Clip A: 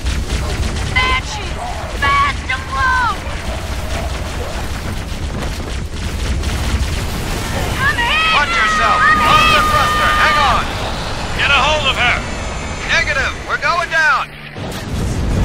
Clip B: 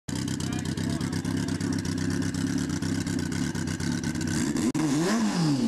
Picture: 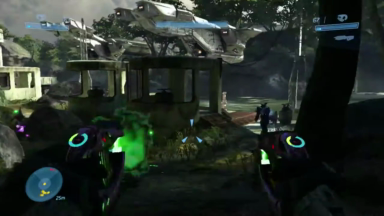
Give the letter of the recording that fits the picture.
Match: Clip A